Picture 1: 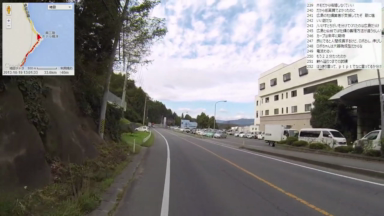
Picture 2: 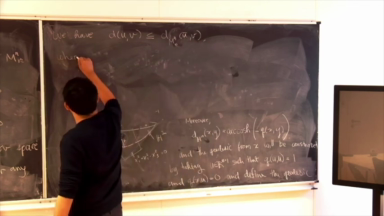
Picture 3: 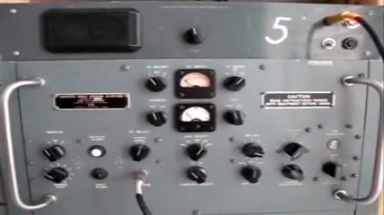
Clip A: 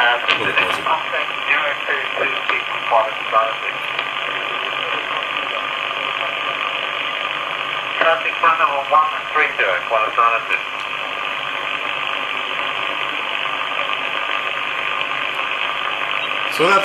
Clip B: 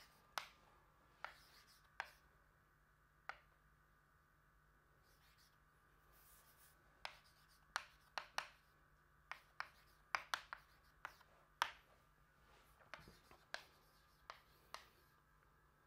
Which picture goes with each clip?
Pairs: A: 3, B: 2